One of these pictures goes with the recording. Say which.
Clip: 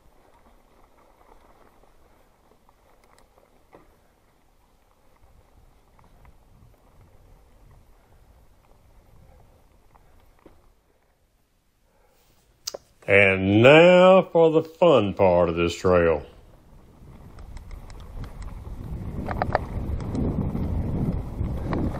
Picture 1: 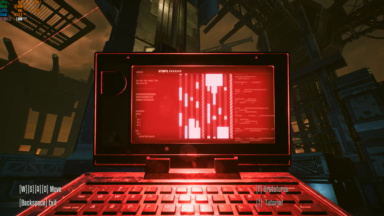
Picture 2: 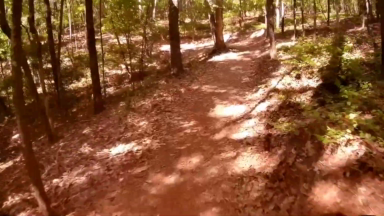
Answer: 2